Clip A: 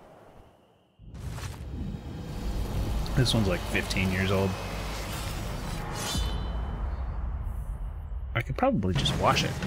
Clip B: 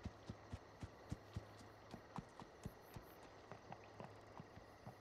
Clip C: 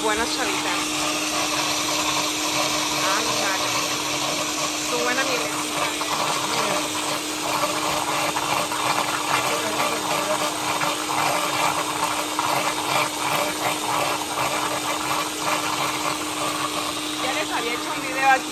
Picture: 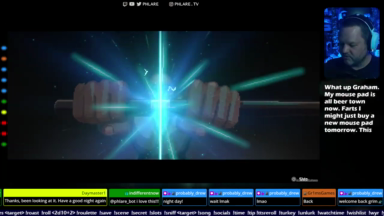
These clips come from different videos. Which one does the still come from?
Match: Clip A